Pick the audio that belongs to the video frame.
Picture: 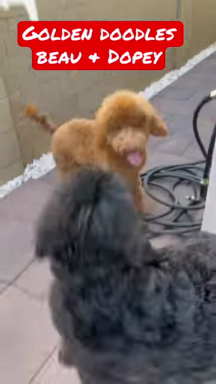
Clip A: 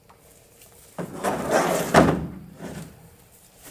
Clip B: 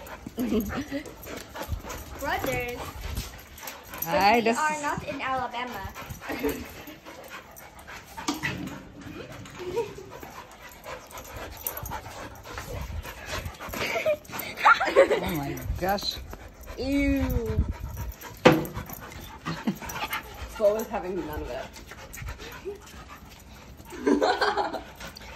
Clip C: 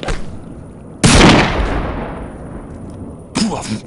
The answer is B